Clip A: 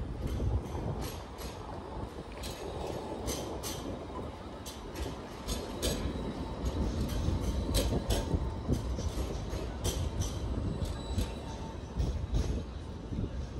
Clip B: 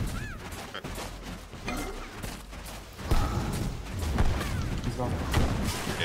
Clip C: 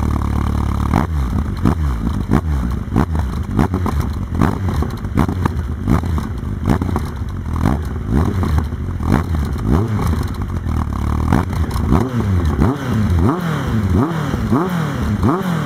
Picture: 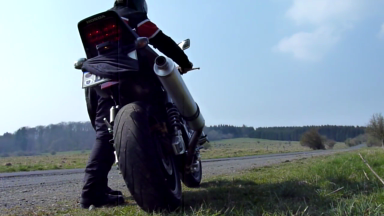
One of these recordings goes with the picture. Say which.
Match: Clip C